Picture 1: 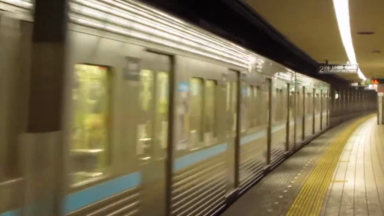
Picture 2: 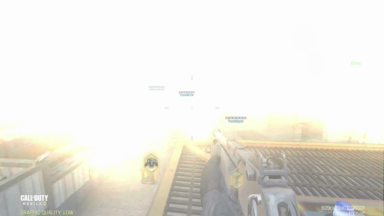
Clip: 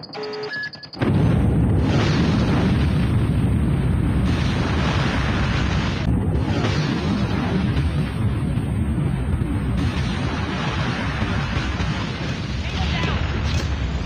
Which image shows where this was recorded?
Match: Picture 2